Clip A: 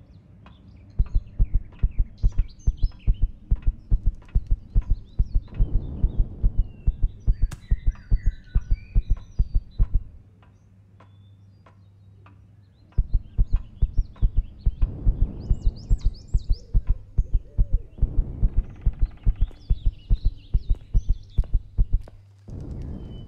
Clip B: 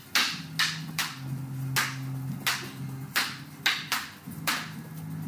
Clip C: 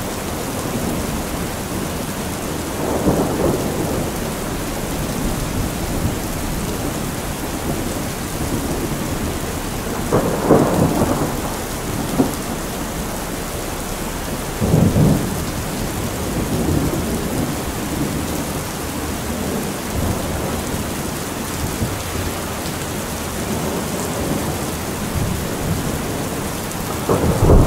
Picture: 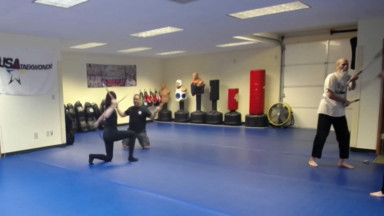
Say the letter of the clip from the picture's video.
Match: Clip B